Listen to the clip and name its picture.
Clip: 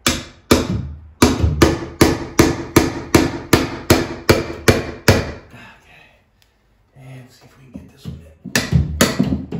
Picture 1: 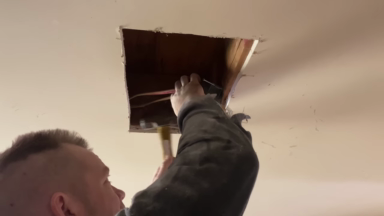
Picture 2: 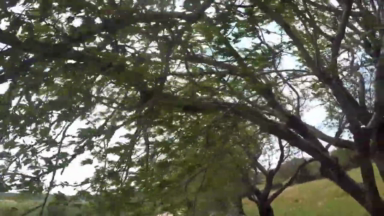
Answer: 1